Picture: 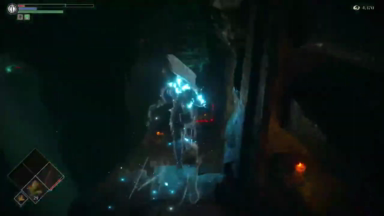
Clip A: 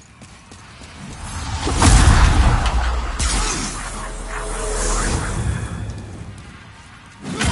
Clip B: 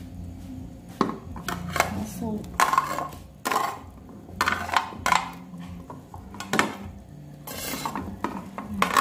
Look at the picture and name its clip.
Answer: A